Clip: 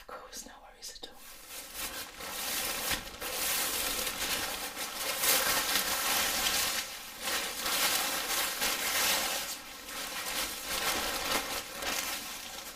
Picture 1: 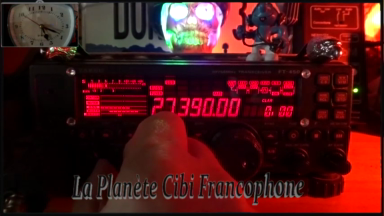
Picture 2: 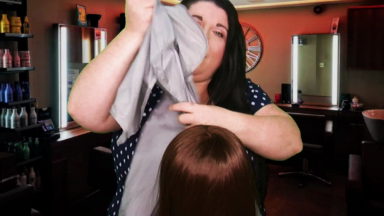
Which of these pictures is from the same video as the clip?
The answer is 2